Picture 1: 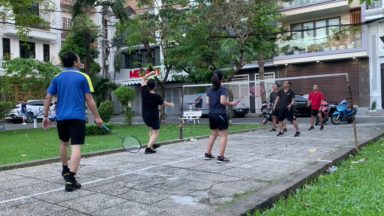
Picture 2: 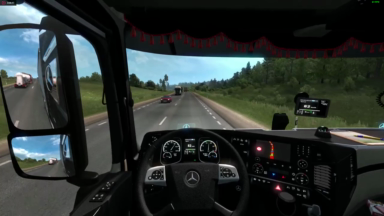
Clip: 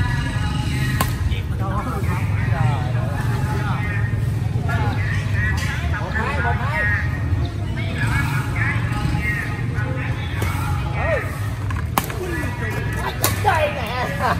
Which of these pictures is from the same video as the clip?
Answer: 1